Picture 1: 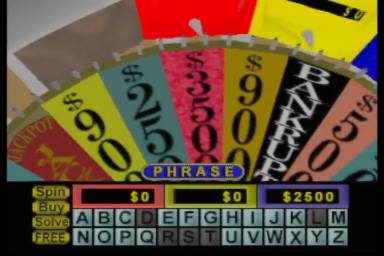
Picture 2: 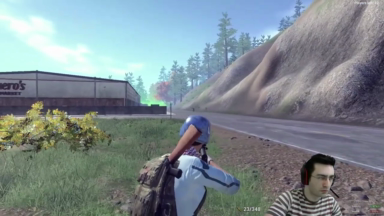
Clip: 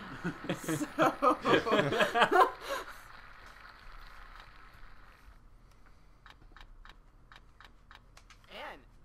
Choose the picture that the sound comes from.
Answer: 1